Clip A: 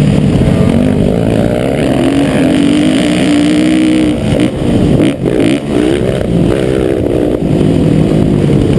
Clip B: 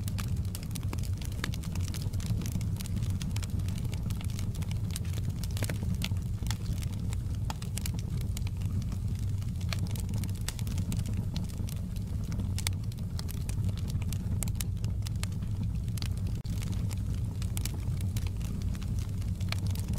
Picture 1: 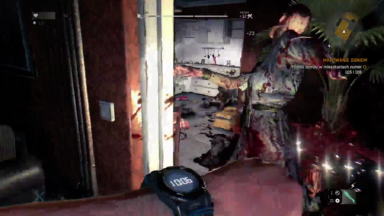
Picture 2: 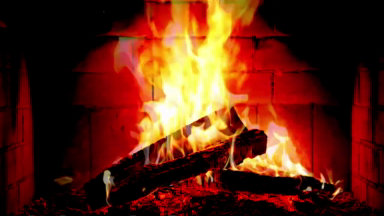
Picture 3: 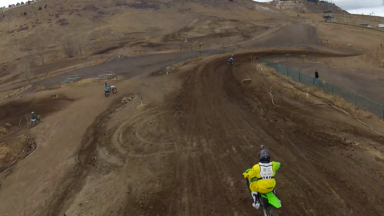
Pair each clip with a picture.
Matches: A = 3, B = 2